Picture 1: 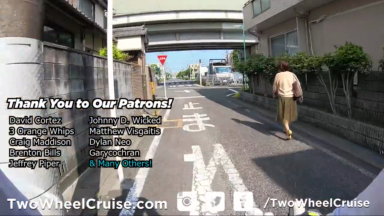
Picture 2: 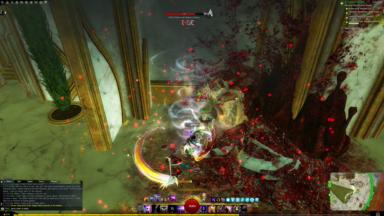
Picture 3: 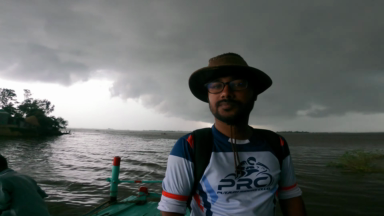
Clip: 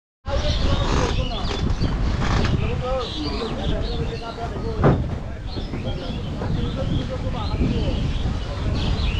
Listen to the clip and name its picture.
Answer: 3